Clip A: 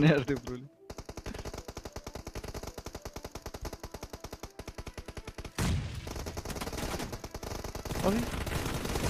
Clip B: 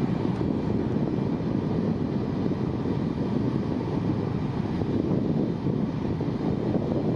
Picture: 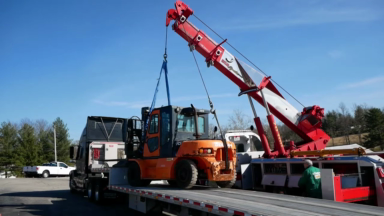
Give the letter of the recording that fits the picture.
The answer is B